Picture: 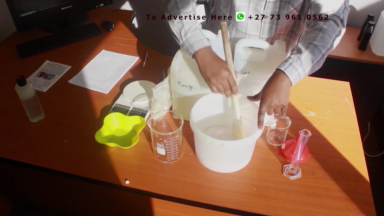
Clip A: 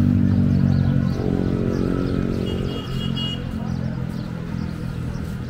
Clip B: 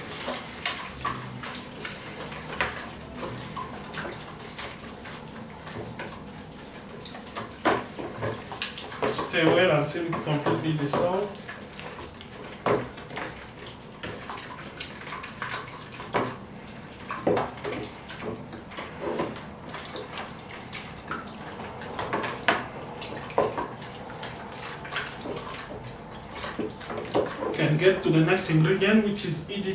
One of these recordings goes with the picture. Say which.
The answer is B